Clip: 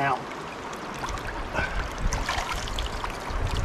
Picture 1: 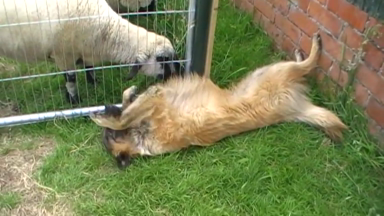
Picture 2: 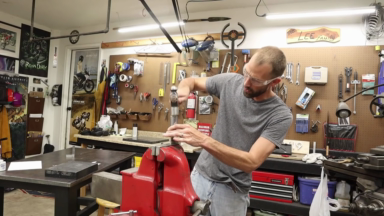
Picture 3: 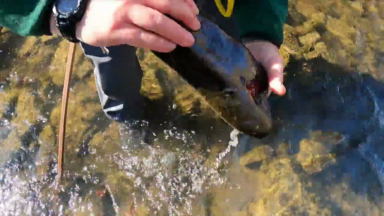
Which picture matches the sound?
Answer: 3